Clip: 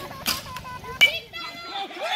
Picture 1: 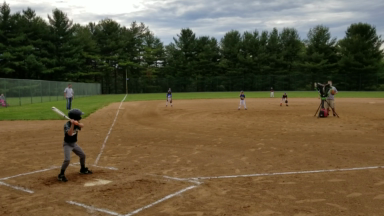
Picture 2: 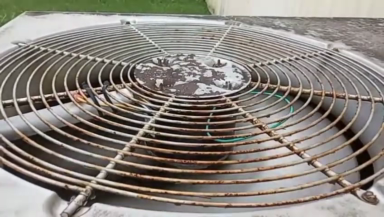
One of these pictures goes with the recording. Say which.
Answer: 1